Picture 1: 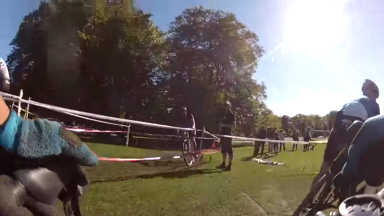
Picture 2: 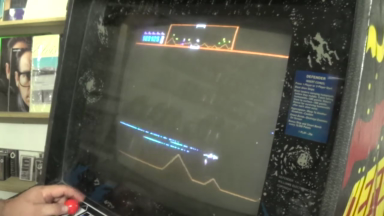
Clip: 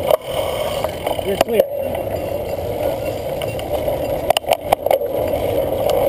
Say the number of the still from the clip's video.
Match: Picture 1